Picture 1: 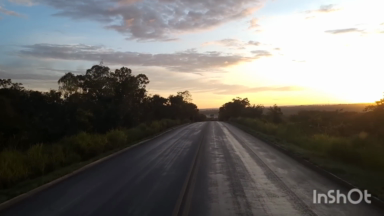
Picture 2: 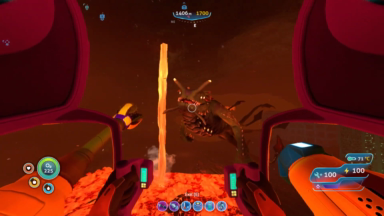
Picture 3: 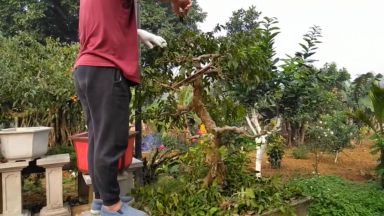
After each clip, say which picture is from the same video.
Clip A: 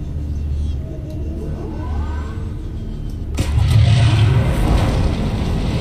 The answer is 2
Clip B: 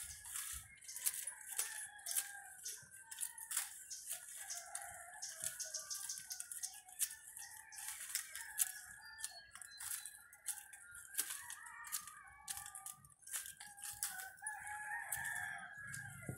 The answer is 3